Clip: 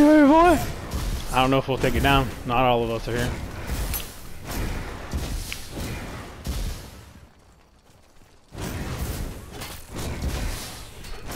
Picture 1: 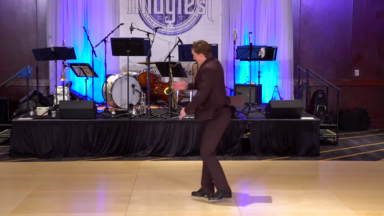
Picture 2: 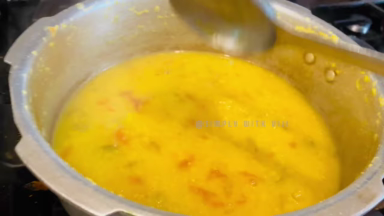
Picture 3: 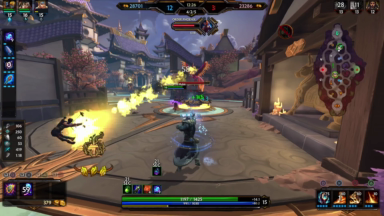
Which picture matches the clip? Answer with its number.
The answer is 3